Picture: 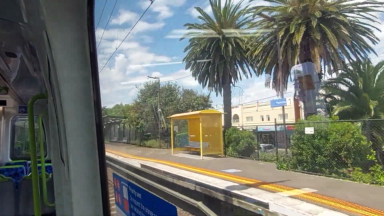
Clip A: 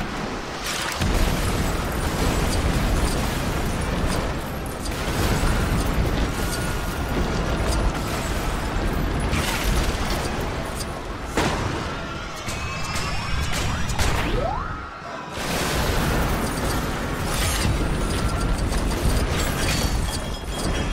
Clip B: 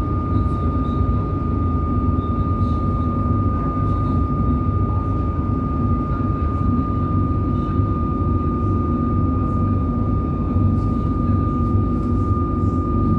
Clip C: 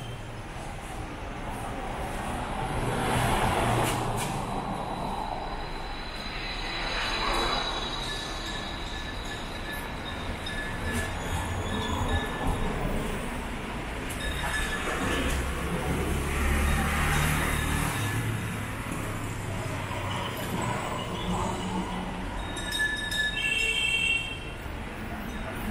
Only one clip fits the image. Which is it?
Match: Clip B